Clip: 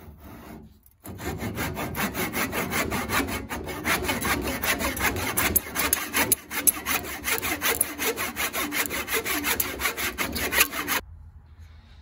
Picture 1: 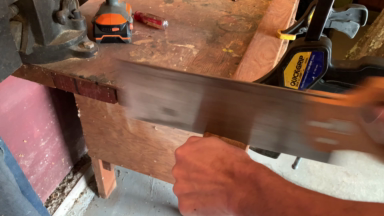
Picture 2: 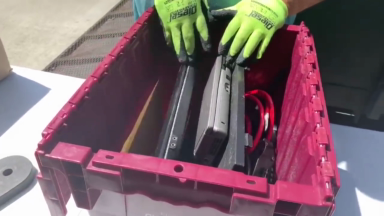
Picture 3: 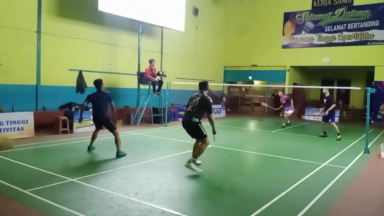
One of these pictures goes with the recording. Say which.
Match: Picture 1